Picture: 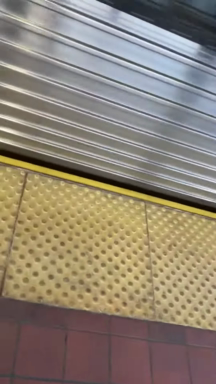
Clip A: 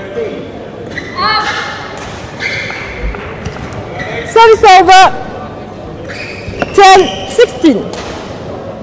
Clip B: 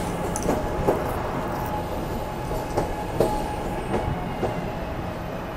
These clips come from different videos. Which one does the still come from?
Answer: B